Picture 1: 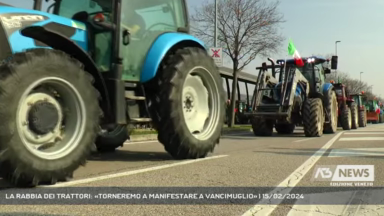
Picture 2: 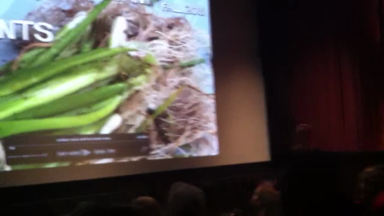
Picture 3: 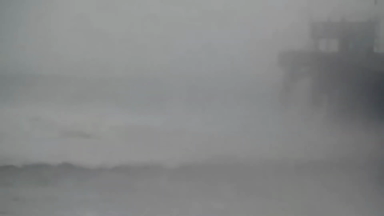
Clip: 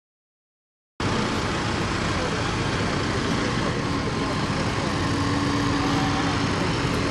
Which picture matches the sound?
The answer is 1